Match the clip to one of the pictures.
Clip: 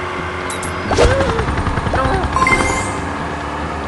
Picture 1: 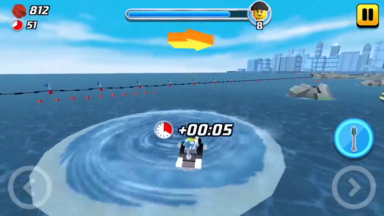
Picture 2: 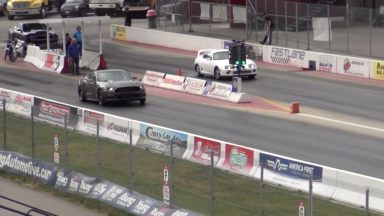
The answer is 1